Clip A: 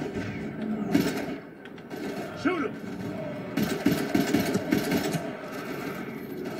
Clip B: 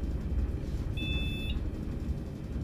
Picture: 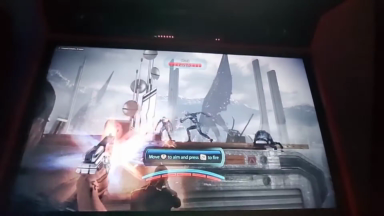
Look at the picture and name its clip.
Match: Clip A